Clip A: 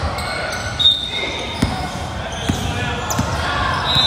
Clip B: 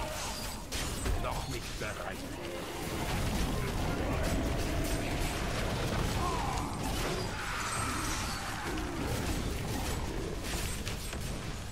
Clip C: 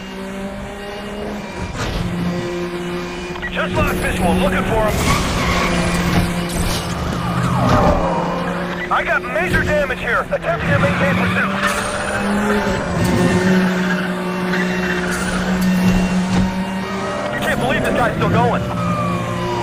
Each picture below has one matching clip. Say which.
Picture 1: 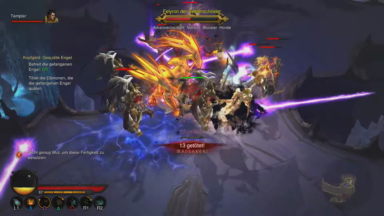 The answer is B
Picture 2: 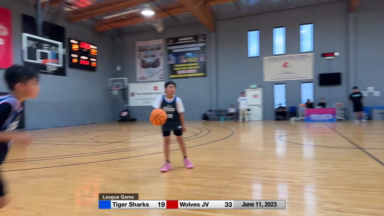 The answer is A